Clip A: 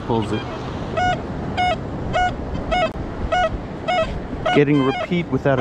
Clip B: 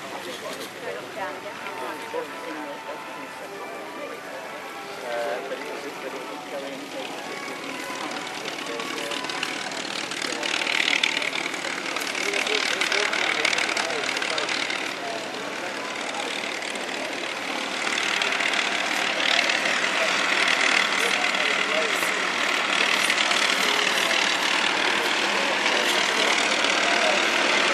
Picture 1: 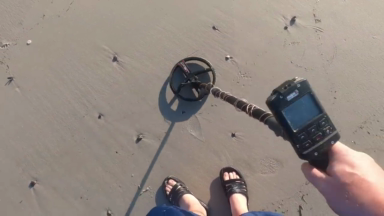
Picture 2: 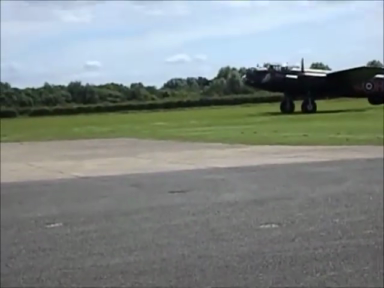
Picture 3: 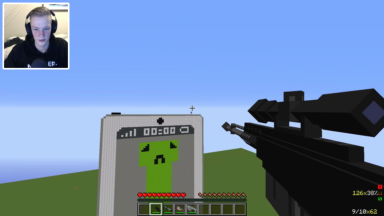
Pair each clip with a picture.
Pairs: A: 1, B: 2